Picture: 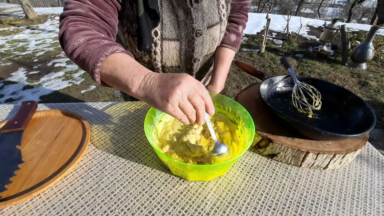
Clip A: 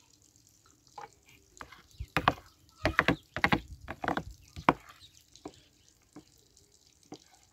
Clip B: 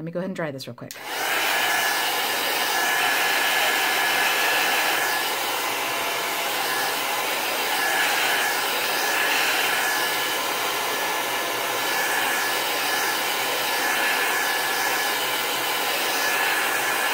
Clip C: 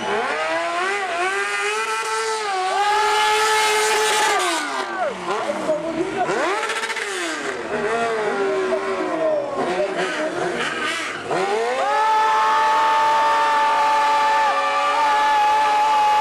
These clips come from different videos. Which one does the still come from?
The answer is A